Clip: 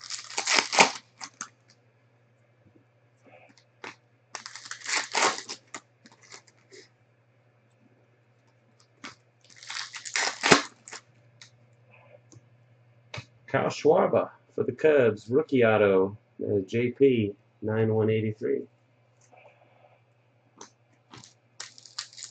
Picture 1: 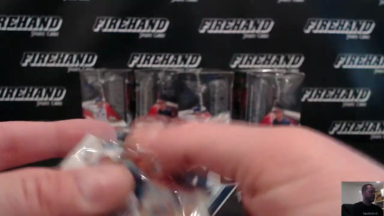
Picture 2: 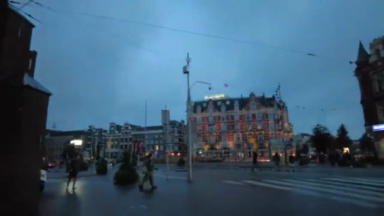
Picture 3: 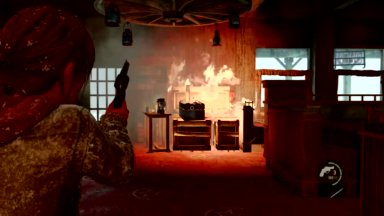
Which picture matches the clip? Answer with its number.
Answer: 1